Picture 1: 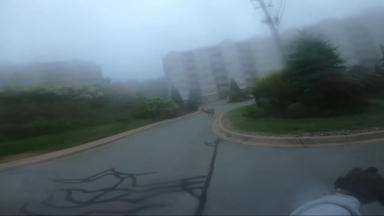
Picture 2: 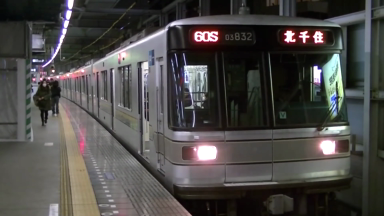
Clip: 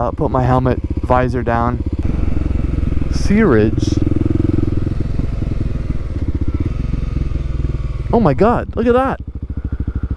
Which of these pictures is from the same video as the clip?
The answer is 1